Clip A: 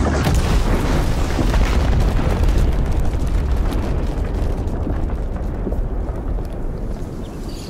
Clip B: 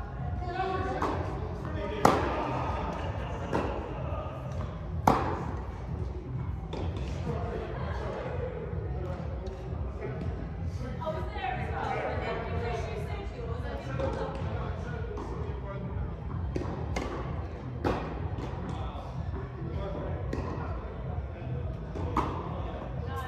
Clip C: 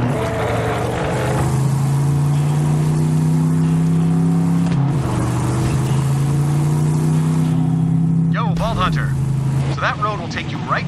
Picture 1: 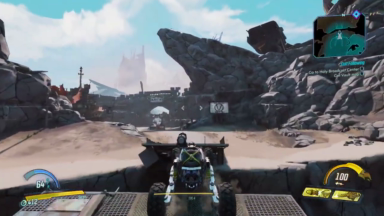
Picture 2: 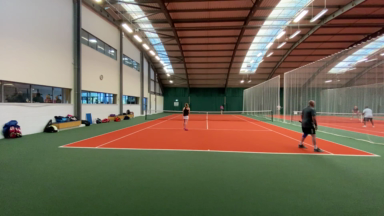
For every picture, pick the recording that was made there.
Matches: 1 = C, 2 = B